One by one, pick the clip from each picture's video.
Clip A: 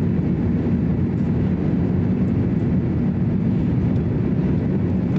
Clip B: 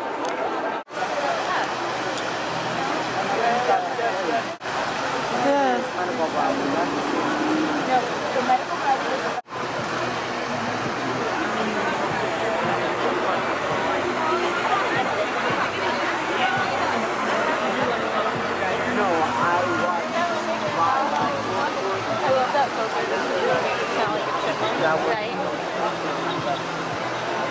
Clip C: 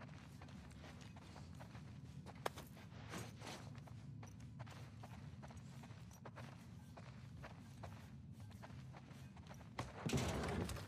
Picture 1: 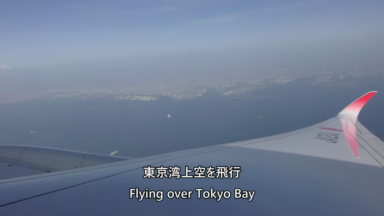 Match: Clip A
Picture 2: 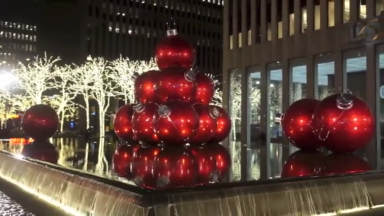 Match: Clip B